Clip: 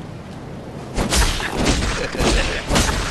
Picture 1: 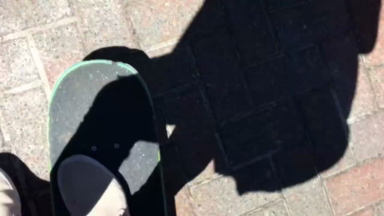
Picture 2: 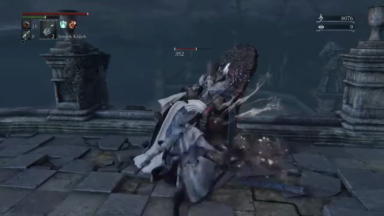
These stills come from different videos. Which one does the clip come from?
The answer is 2